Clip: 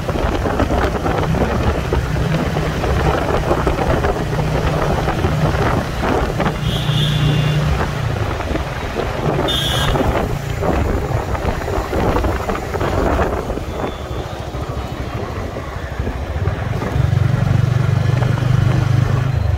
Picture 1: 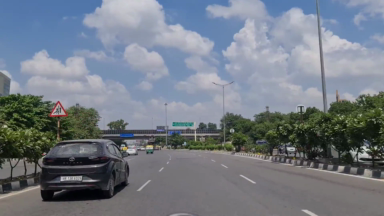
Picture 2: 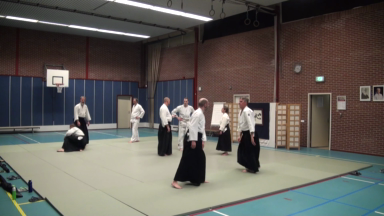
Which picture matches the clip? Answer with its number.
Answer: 1